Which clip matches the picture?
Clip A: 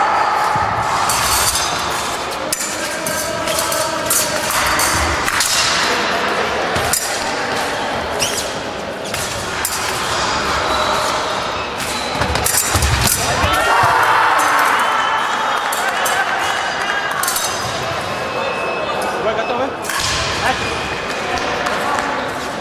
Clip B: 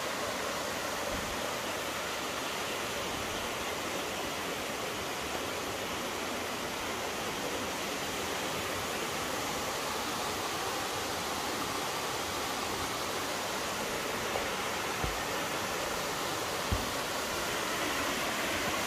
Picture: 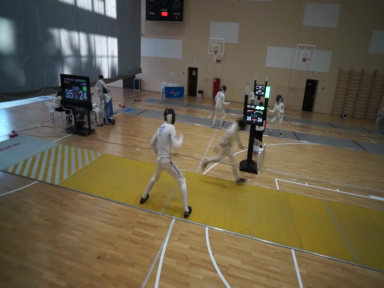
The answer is A